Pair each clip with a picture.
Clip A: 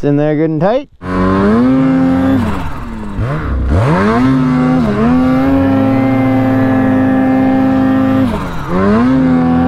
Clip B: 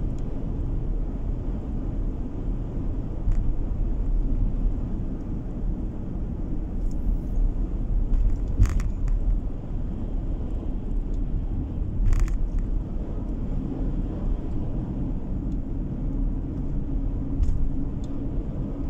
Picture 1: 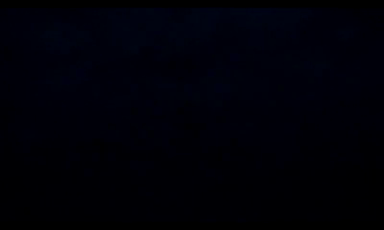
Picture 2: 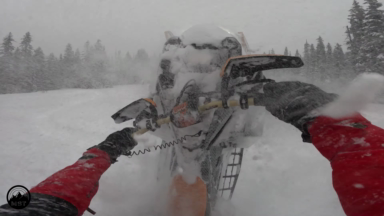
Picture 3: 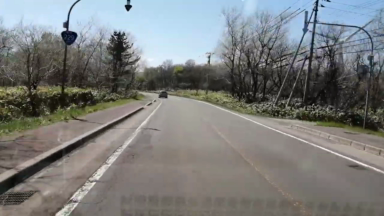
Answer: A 2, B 3